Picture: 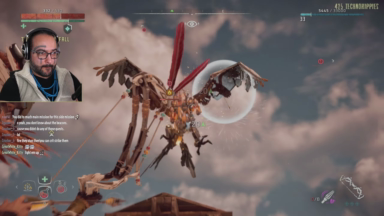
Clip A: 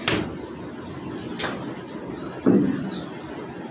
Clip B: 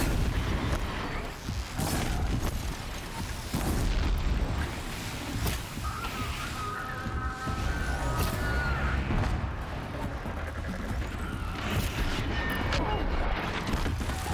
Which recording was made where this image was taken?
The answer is B